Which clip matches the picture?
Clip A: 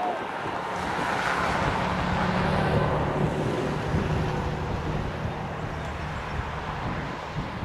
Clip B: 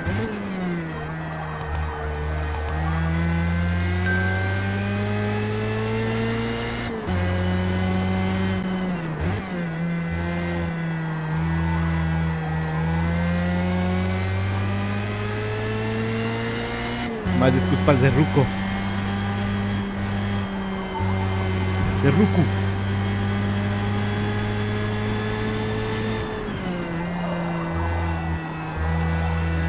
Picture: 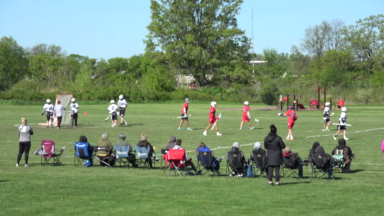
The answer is A